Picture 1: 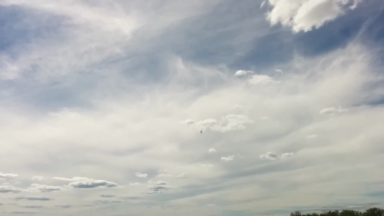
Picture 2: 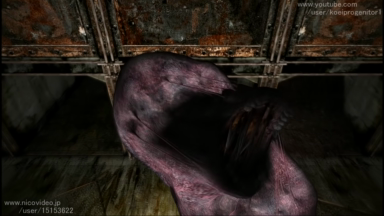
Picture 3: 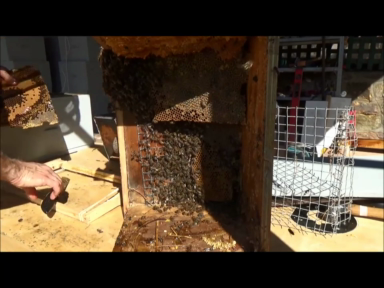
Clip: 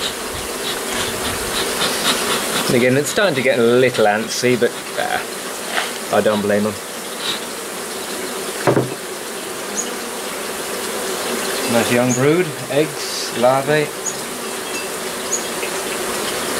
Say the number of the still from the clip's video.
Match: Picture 3